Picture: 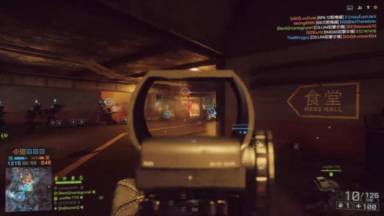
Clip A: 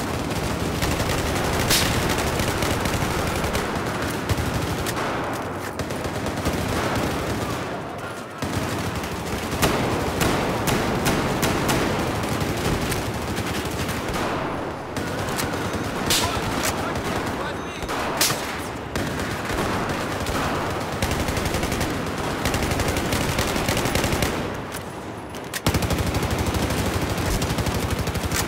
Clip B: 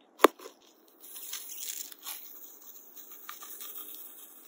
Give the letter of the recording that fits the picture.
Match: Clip A